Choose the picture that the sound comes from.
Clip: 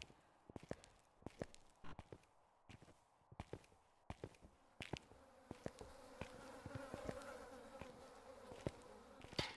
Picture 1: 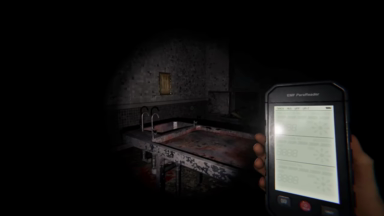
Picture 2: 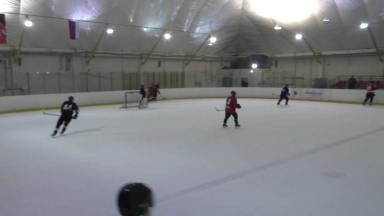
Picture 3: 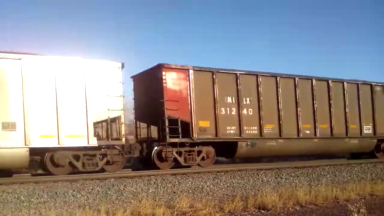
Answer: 1